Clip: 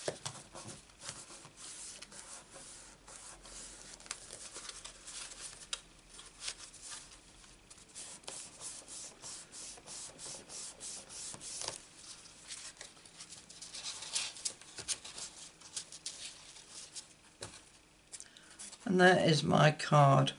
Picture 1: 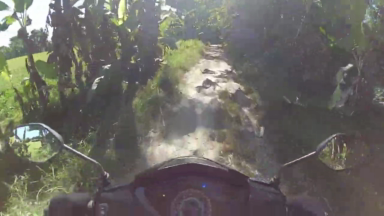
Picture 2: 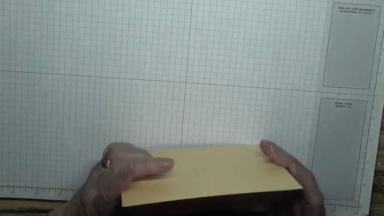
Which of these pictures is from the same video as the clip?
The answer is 2